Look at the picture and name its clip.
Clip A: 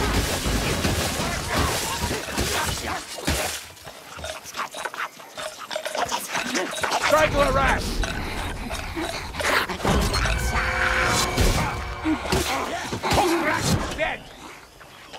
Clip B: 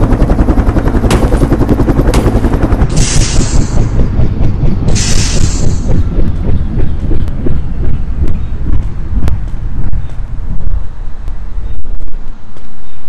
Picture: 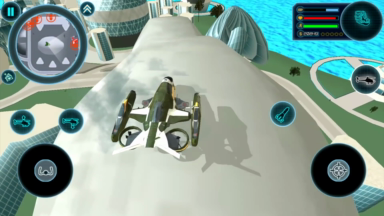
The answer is B